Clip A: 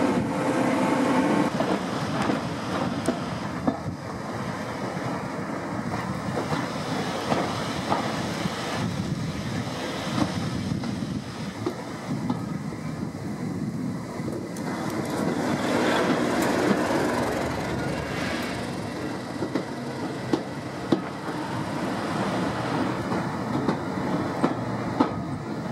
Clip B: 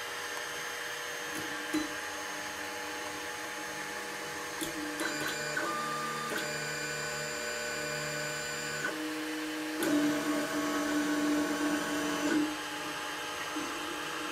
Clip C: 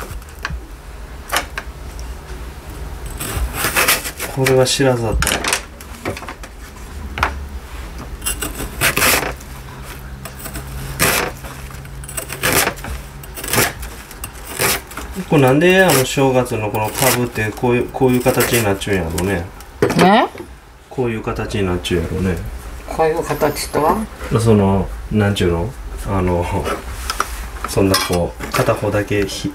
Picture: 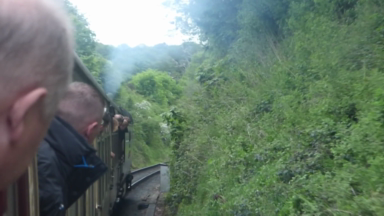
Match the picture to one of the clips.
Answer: A